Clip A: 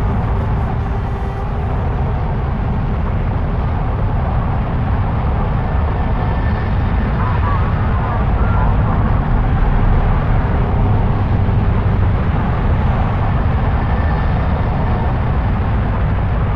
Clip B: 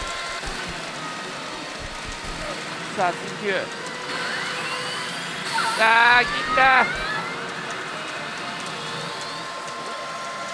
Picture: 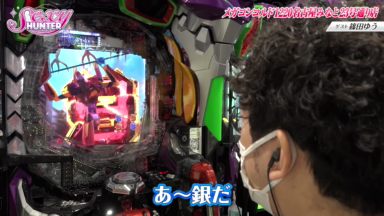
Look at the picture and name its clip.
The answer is B